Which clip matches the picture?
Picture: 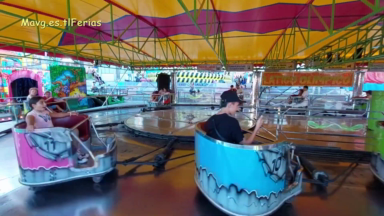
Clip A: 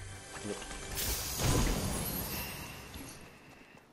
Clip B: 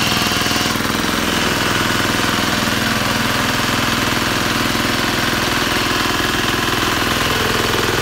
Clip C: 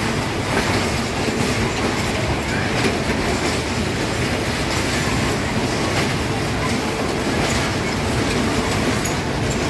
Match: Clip C